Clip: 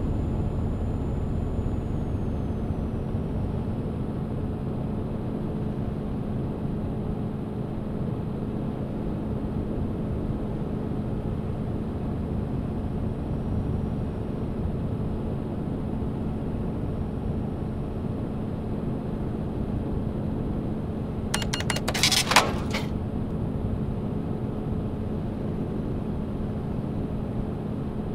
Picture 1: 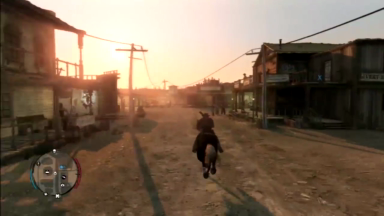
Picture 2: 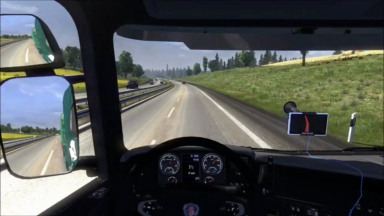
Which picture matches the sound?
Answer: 2